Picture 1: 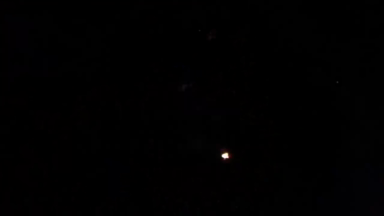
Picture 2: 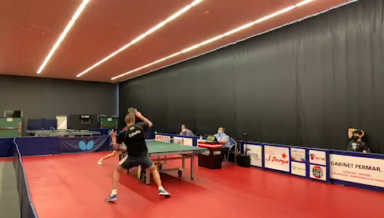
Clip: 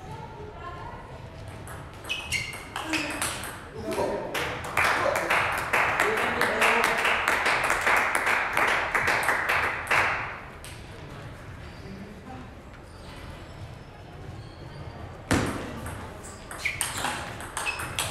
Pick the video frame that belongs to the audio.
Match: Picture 2